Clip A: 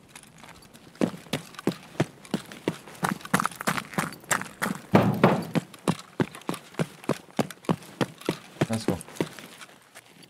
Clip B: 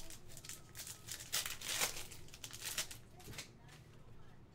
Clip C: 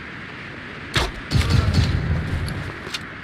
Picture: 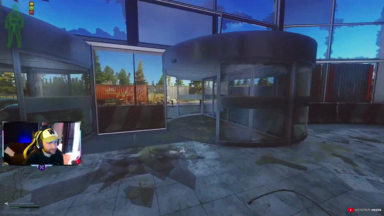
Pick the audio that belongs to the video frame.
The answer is A